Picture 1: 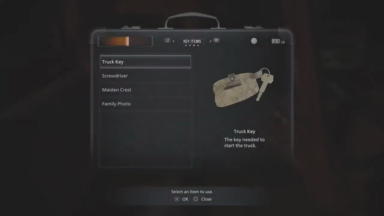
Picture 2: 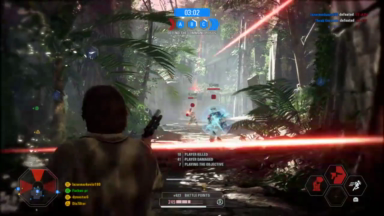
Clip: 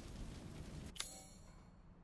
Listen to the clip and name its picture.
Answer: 1